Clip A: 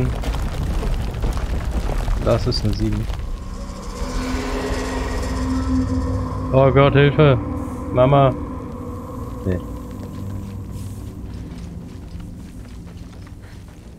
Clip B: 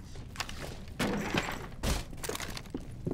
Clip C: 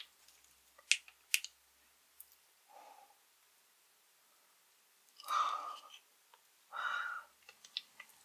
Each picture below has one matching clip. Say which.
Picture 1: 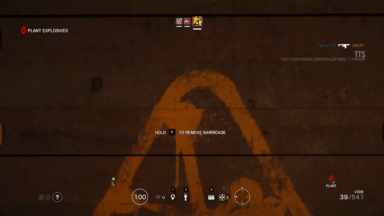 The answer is B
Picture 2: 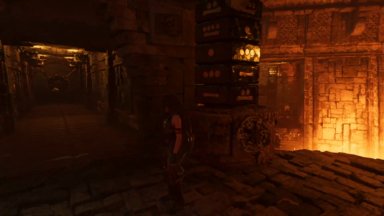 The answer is A